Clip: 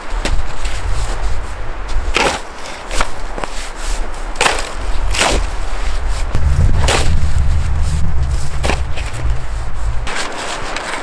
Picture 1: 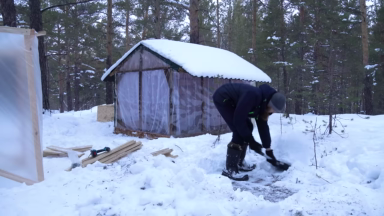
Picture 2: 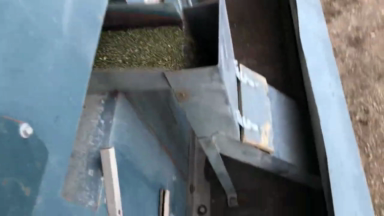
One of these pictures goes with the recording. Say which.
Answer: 1